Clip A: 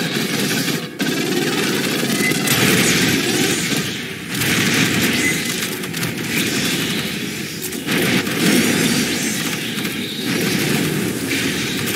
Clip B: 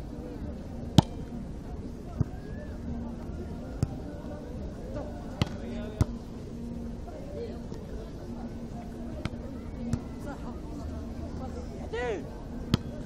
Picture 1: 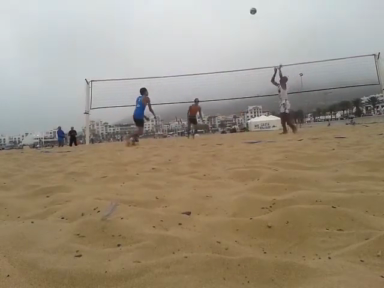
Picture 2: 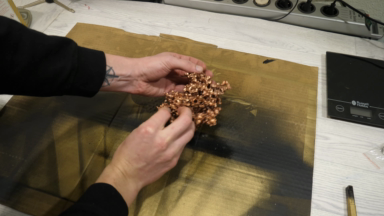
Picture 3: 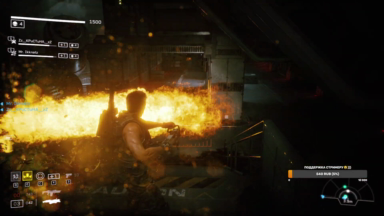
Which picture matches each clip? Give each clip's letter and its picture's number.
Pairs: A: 3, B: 1